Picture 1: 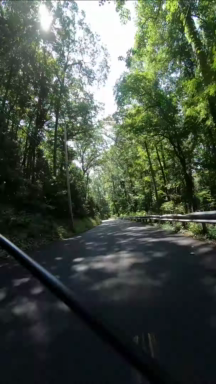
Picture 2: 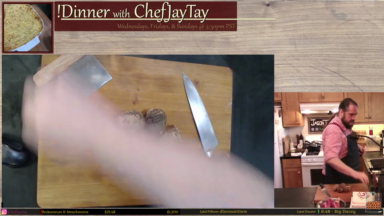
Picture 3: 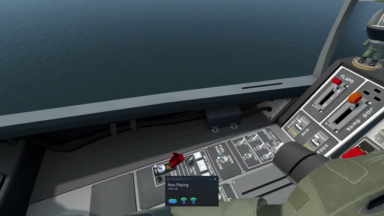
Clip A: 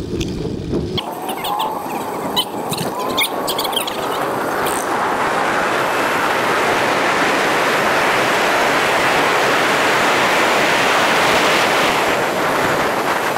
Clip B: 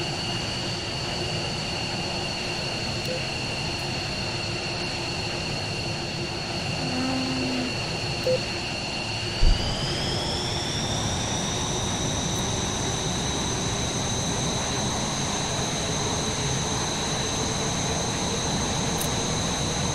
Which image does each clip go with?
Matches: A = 1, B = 3